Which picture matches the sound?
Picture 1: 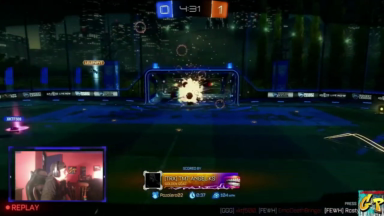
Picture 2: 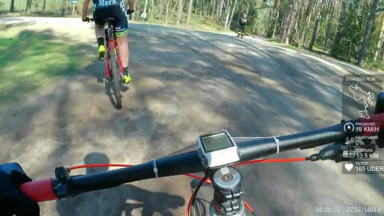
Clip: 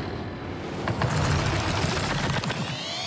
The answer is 1